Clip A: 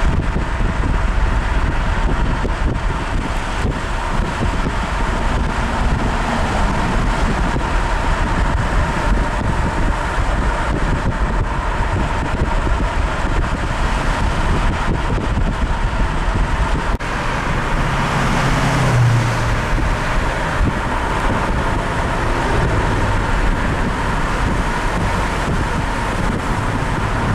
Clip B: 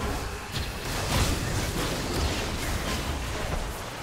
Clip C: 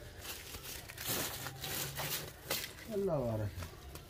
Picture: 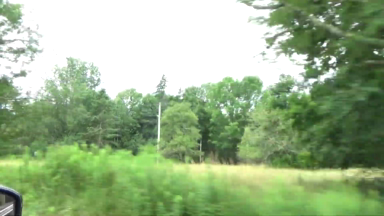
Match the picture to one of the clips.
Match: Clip A